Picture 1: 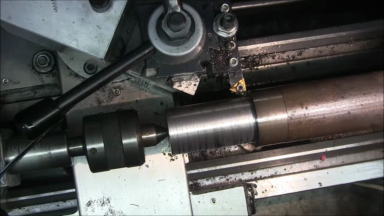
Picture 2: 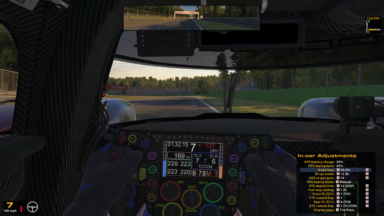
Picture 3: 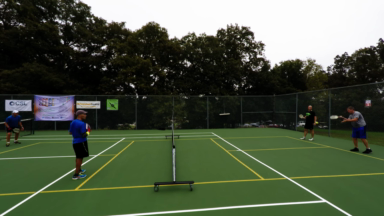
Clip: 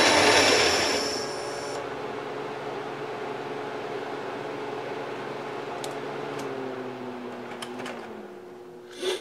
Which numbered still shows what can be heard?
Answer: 1